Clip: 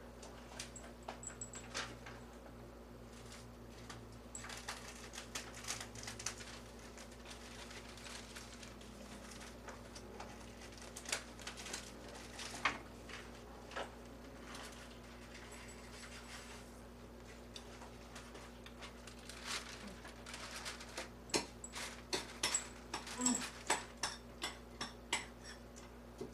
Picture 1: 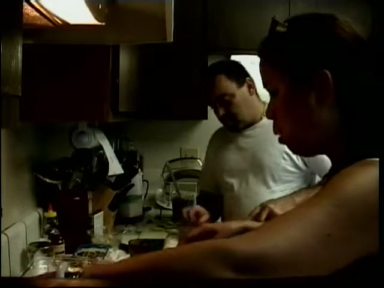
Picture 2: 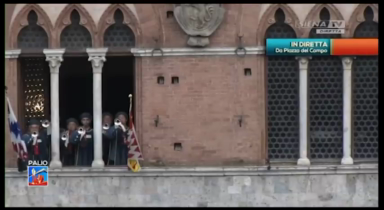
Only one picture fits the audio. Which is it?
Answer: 1